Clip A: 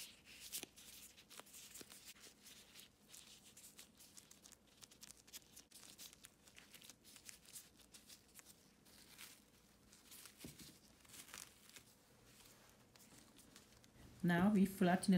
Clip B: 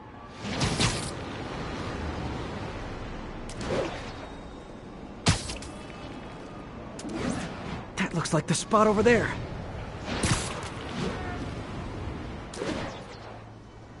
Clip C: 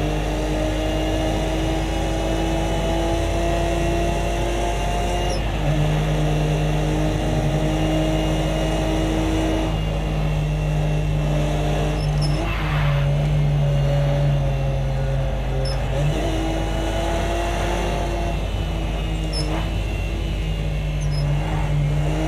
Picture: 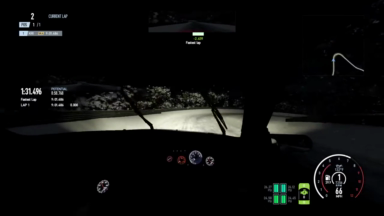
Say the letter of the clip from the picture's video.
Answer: C